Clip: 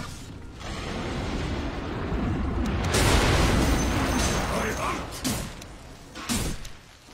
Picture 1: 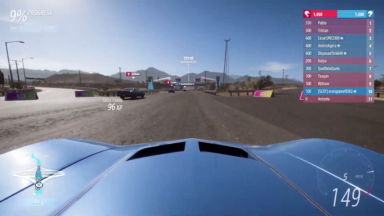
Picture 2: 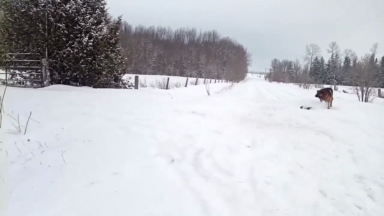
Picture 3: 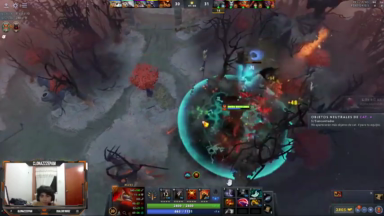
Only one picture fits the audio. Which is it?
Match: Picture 3